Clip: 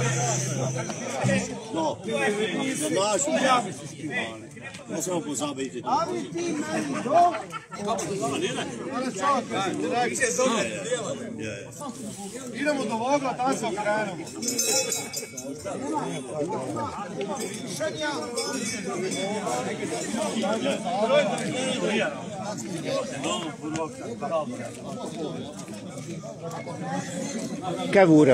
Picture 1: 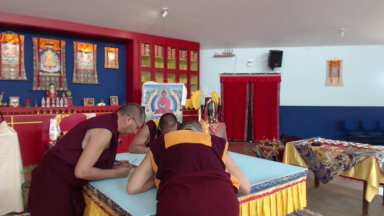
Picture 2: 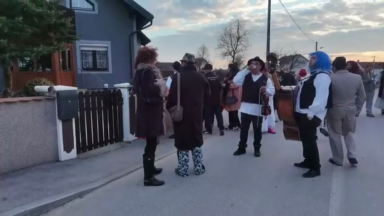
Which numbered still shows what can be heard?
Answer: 2